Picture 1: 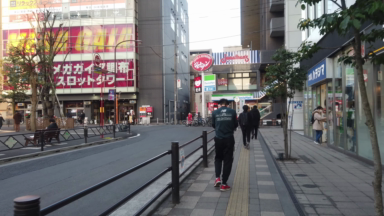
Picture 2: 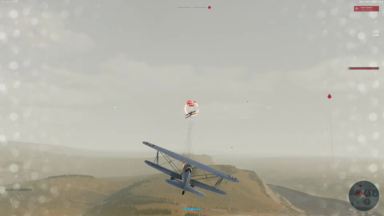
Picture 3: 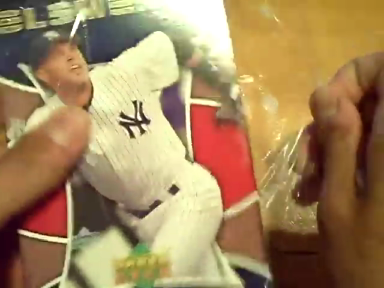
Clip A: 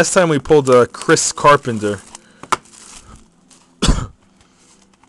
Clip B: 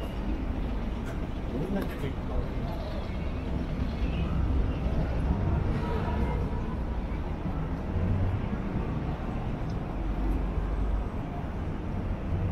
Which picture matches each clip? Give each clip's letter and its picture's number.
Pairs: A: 3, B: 1